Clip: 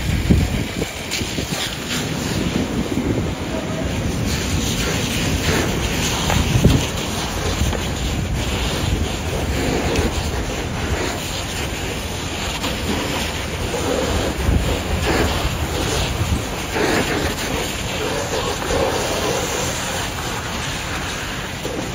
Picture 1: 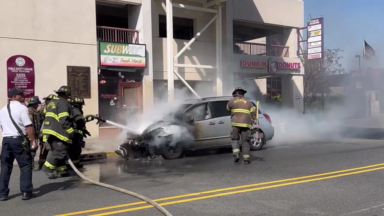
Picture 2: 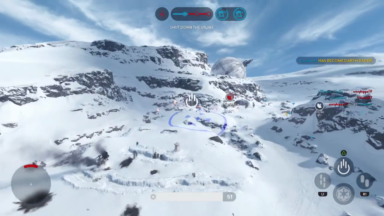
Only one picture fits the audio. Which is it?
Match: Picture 1